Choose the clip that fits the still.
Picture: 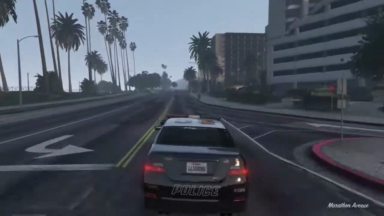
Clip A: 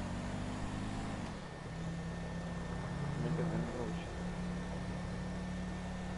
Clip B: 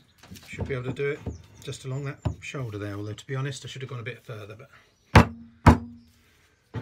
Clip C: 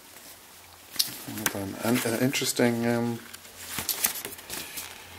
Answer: A